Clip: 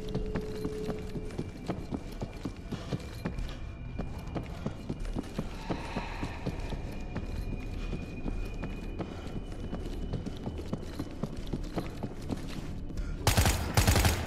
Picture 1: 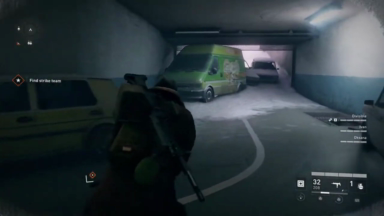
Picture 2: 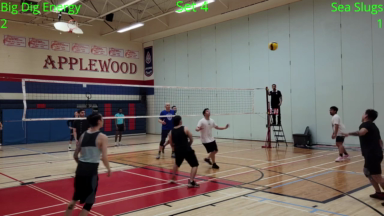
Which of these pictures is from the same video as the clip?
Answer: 1